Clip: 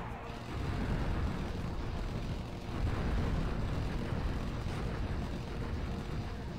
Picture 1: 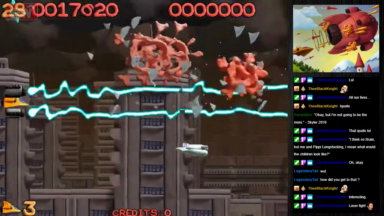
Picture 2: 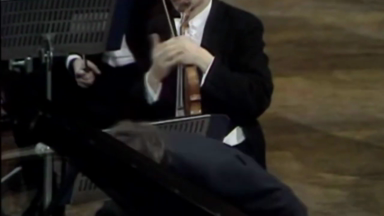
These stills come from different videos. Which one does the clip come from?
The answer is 1